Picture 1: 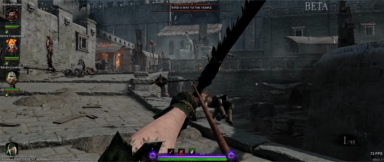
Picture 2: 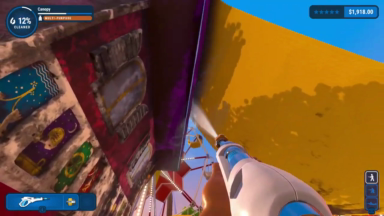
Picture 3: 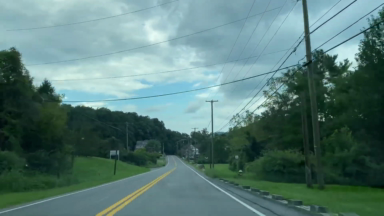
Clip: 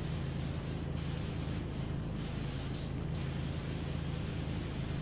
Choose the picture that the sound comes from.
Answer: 2